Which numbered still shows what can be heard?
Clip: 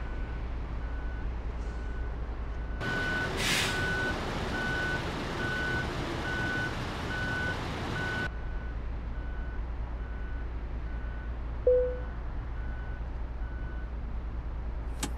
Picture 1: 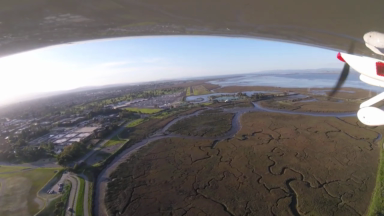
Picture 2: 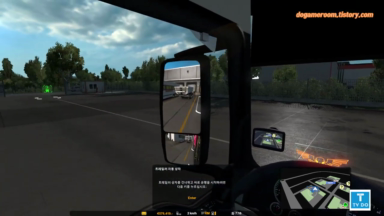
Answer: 2